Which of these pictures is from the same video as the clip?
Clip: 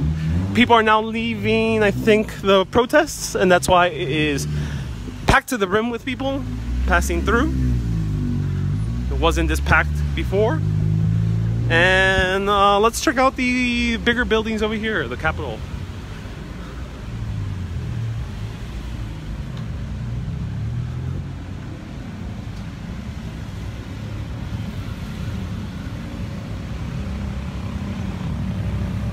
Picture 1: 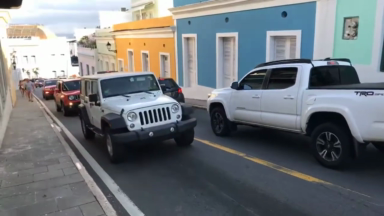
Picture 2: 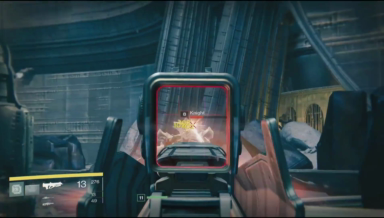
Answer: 1